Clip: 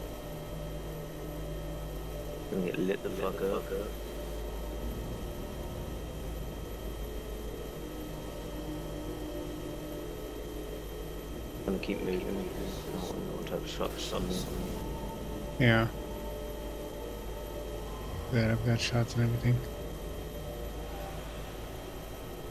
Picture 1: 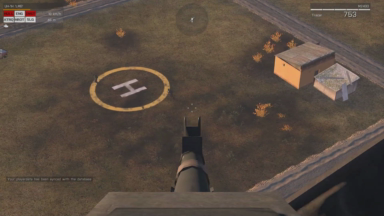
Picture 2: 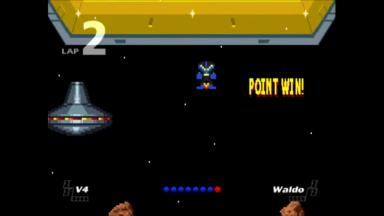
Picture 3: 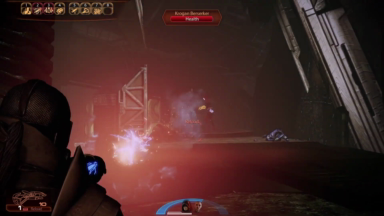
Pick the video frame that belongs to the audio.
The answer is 1